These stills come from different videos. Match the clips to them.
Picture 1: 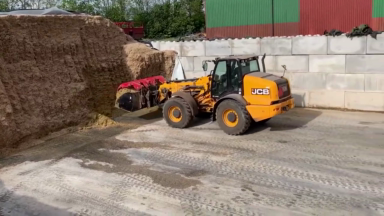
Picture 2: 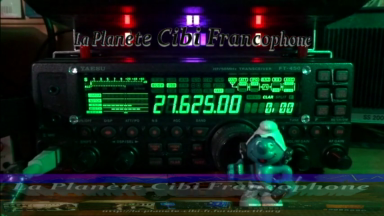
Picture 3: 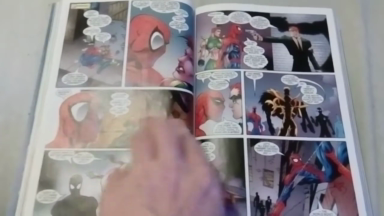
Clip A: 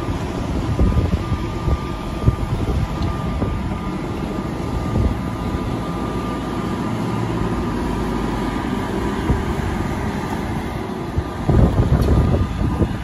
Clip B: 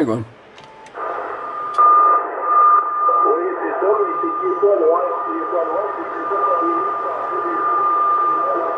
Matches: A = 1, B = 2